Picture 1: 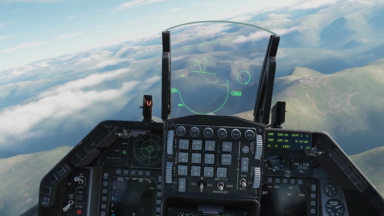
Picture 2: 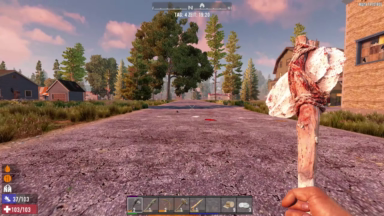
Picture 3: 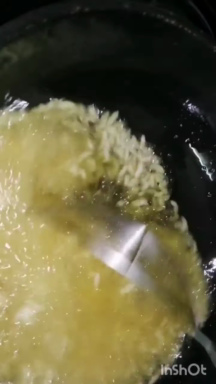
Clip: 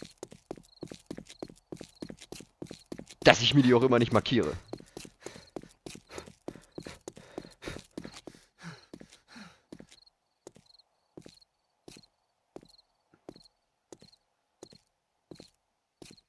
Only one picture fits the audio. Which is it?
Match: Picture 2